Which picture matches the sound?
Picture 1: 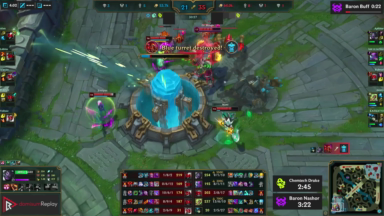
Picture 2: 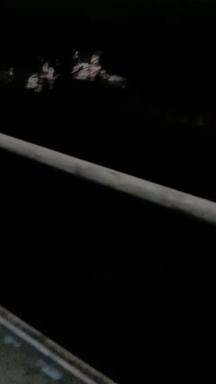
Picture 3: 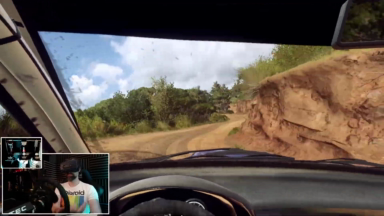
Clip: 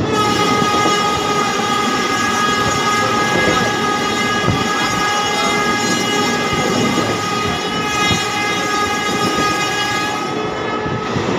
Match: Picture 2